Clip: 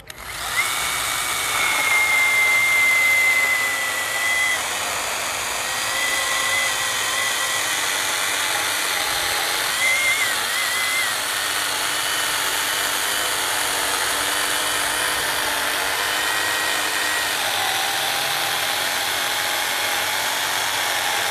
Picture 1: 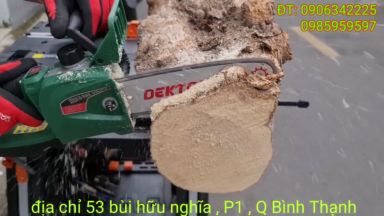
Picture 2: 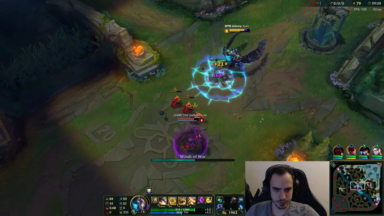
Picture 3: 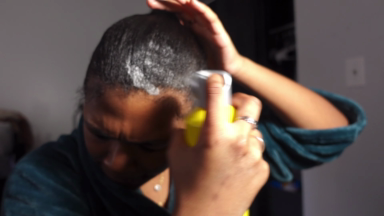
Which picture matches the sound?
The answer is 1